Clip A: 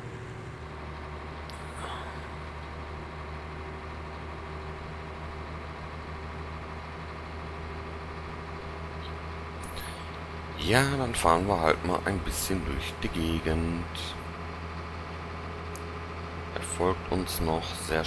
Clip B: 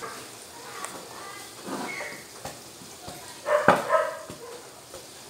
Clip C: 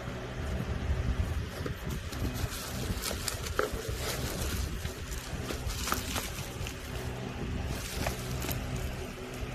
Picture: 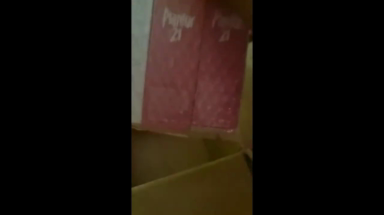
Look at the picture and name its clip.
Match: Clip C